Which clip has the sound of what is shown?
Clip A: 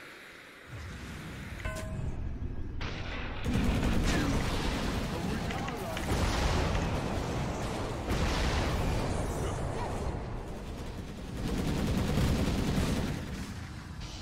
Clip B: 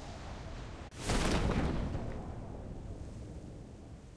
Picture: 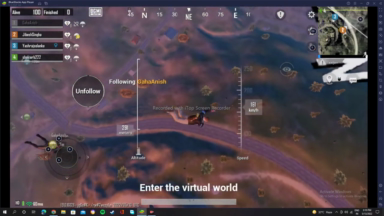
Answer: B